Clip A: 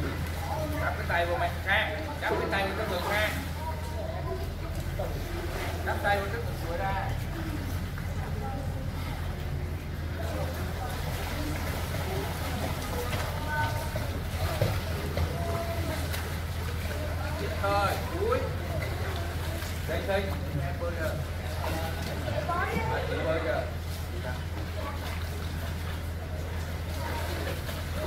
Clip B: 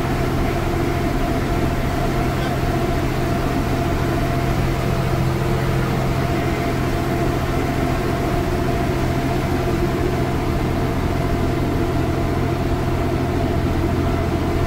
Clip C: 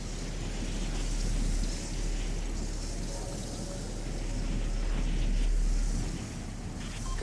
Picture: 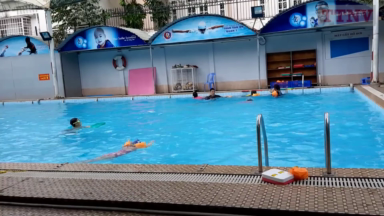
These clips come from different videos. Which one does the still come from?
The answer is A